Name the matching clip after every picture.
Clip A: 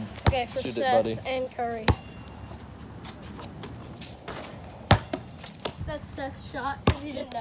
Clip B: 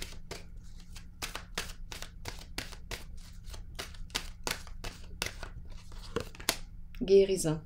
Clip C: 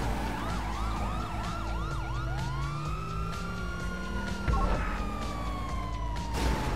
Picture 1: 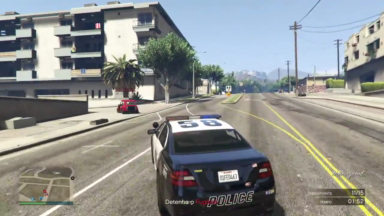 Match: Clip C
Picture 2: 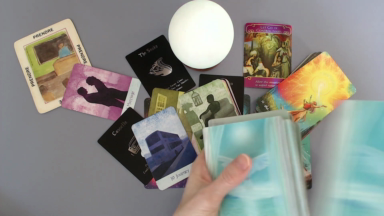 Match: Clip B